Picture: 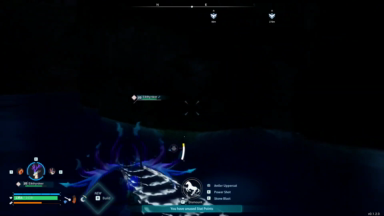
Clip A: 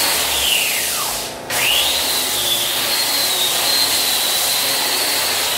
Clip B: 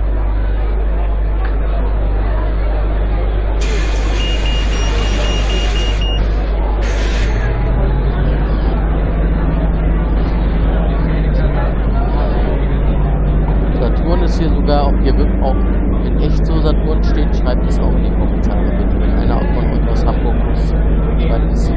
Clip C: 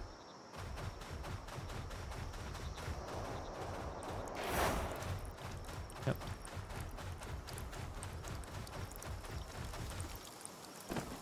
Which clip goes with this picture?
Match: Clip C